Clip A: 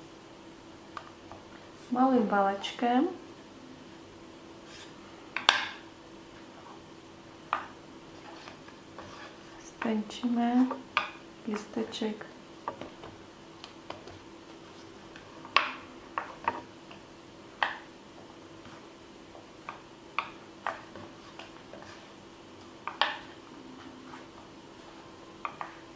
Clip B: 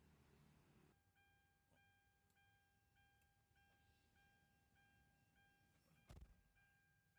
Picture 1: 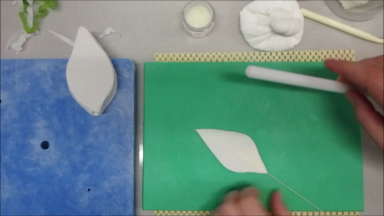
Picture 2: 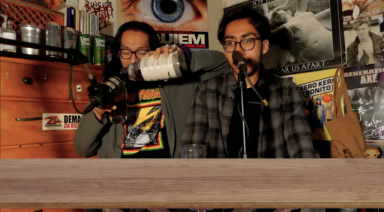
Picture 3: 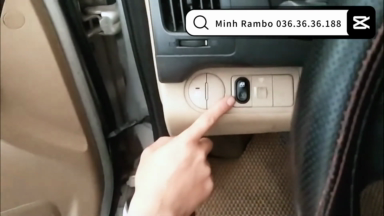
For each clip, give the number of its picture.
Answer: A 1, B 3